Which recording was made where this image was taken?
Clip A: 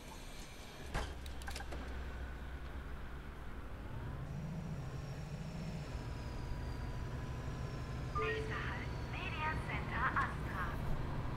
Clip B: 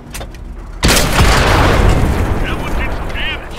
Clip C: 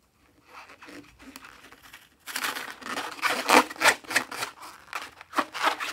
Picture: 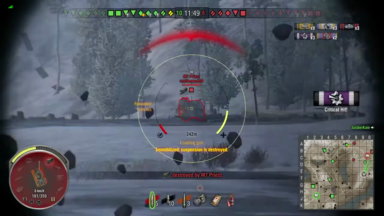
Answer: B